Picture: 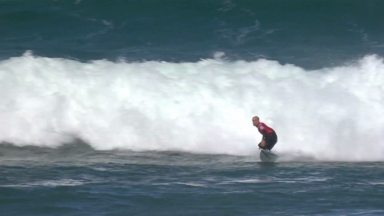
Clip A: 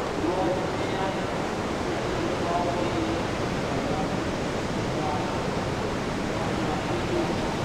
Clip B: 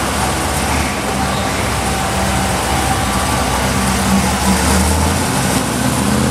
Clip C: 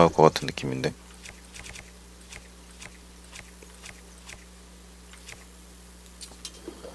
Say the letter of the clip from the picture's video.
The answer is A